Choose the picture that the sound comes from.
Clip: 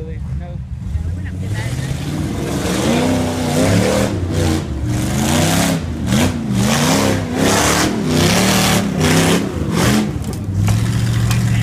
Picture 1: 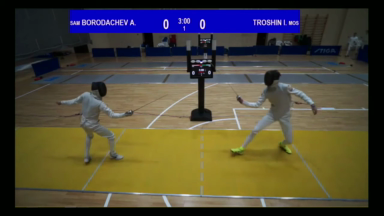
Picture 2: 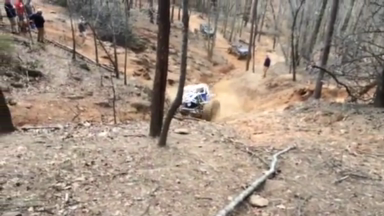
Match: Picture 2